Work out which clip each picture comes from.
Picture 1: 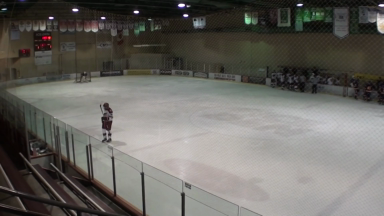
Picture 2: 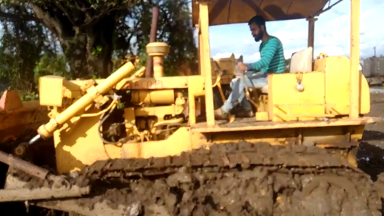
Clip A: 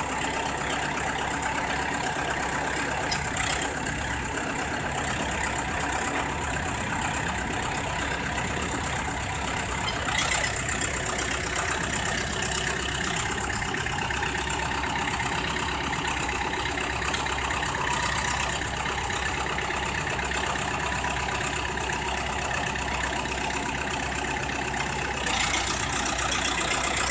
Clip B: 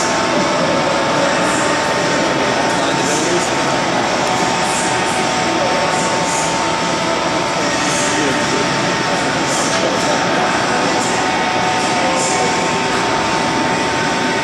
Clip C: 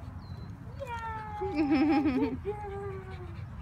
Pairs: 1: B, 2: A